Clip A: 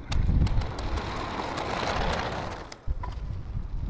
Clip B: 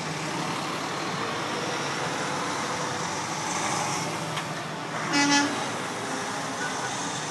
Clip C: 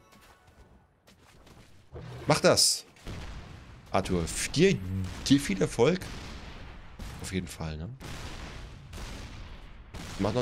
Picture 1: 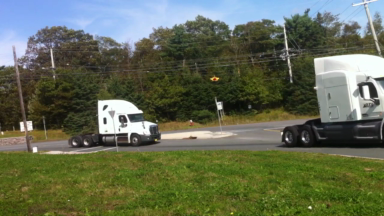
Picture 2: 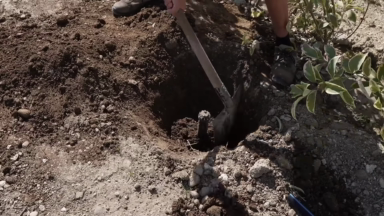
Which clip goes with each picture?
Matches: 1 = B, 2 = A